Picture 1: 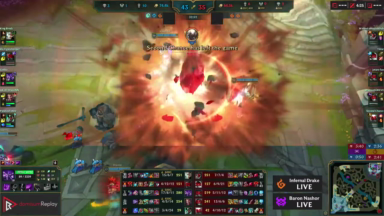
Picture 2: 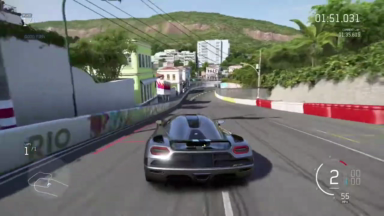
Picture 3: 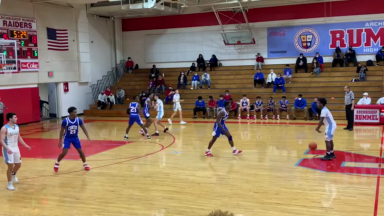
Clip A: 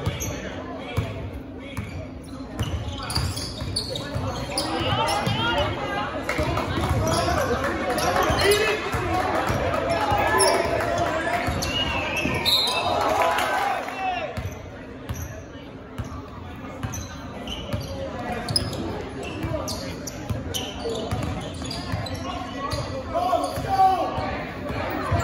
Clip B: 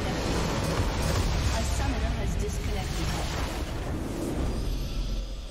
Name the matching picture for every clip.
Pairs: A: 3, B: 1